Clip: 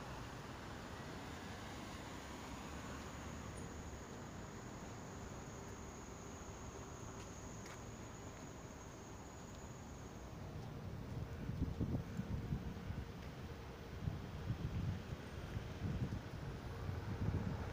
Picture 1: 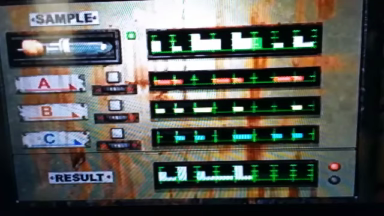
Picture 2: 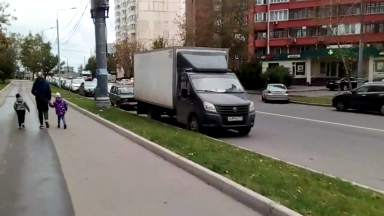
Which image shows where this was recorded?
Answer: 2